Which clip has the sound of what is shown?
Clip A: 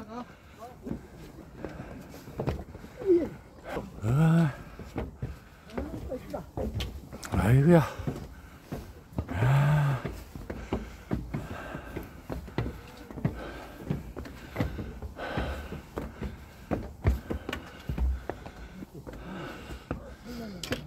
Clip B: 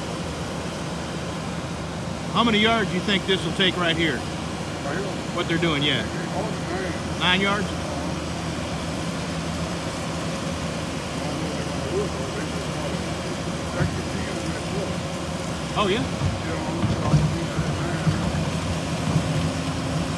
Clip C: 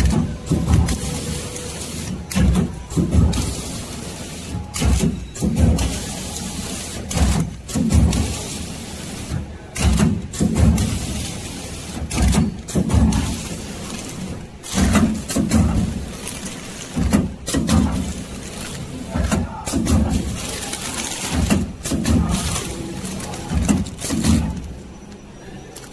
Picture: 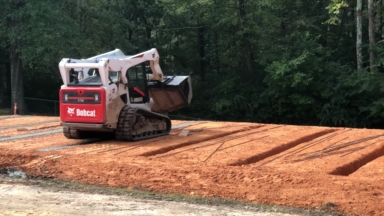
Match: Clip B